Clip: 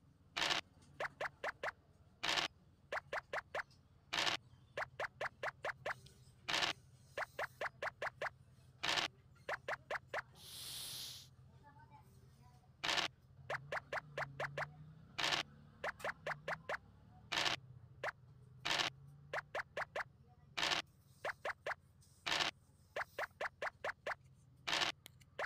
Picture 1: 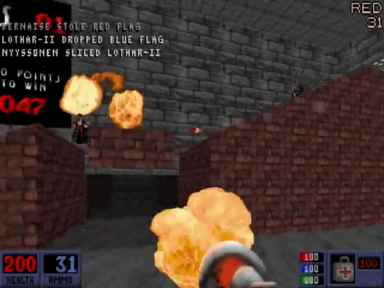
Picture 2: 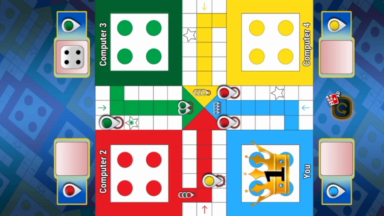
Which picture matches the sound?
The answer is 2